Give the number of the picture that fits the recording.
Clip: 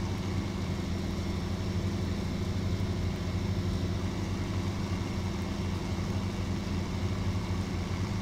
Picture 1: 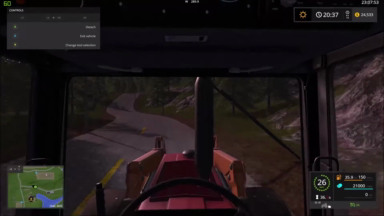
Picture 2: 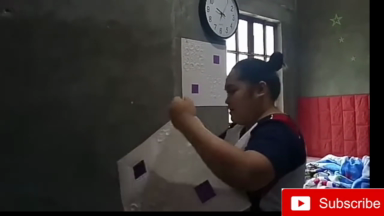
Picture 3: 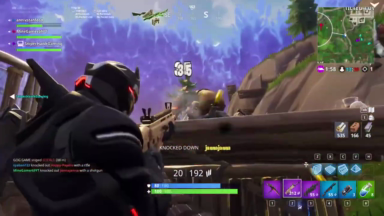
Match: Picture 1